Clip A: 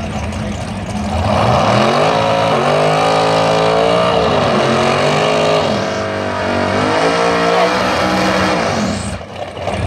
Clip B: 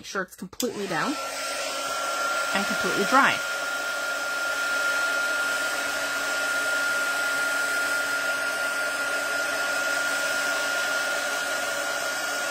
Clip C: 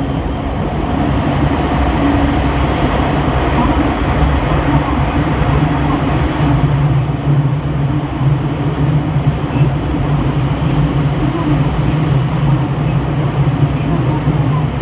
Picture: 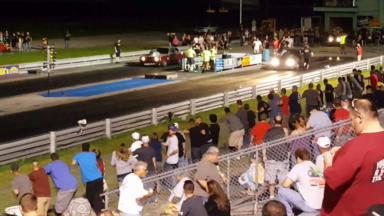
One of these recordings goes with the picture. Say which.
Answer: A